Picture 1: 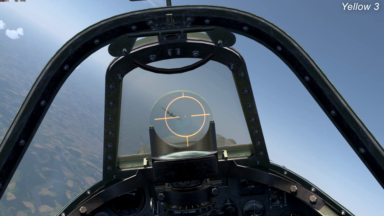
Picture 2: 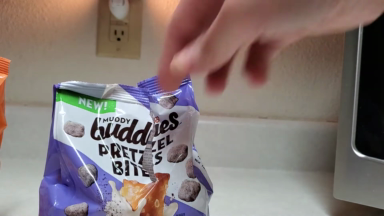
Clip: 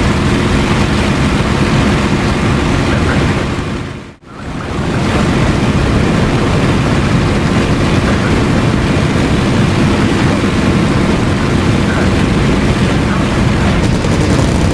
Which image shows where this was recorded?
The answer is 1